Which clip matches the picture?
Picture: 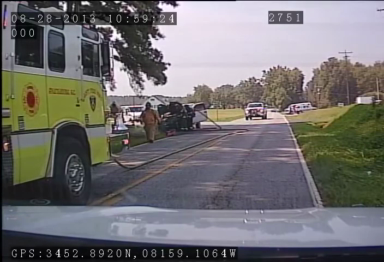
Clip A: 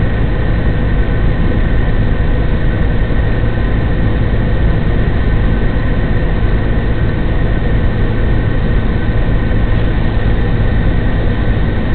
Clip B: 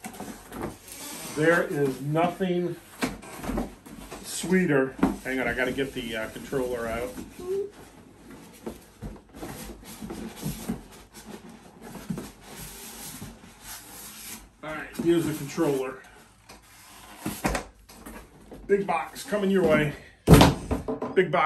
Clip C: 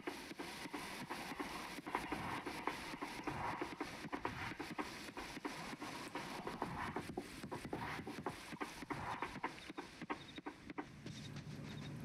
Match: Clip A